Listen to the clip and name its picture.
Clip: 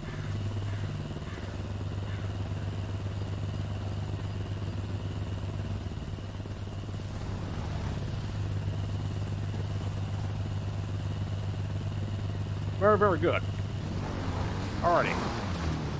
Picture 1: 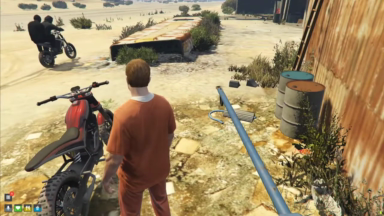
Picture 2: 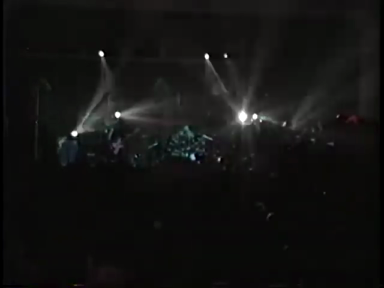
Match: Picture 1